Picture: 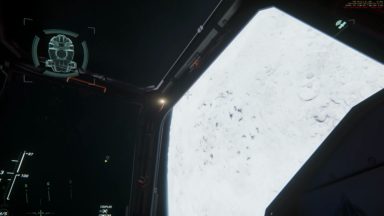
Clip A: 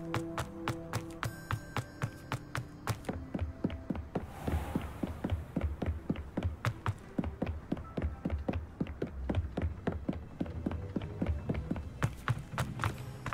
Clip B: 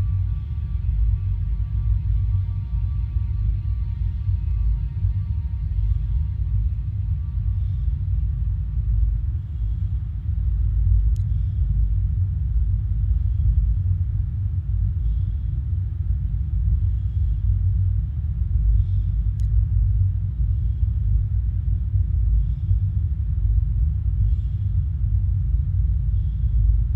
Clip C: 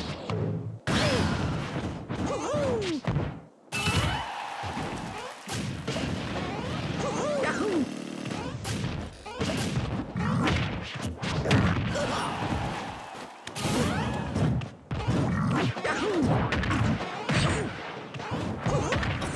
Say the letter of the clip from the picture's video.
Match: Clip B